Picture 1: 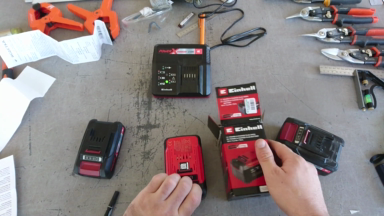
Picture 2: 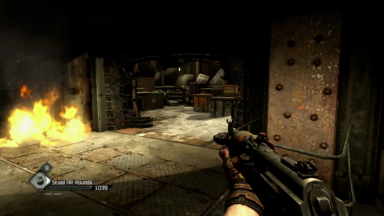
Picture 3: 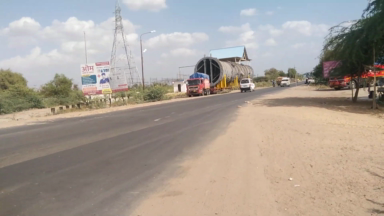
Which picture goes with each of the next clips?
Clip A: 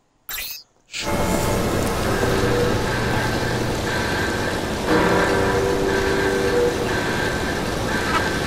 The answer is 2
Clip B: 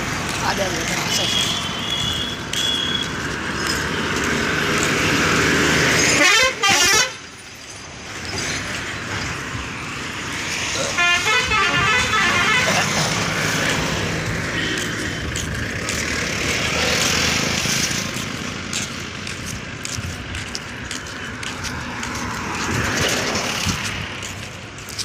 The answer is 3